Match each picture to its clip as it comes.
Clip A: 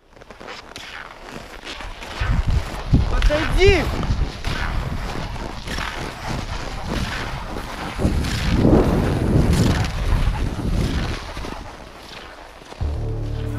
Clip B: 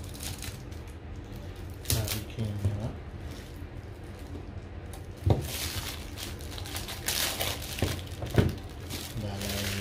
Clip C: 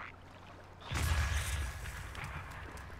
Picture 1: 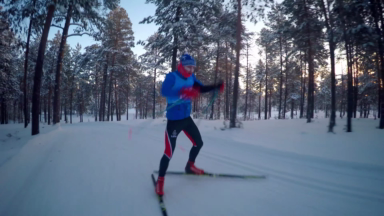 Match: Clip A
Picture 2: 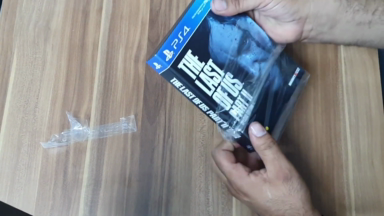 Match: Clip B